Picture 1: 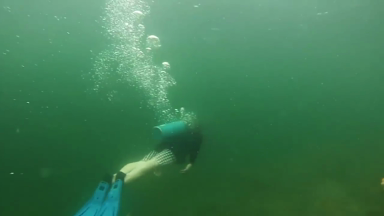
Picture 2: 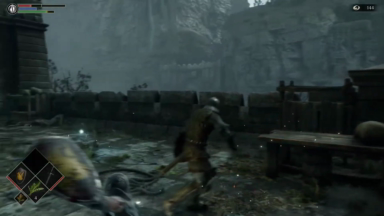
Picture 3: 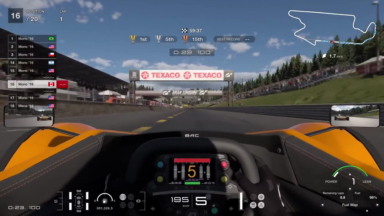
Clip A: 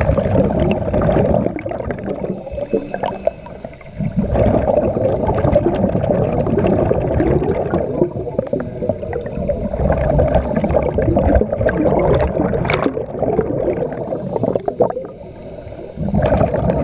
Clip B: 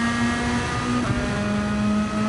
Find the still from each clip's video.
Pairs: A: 1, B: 3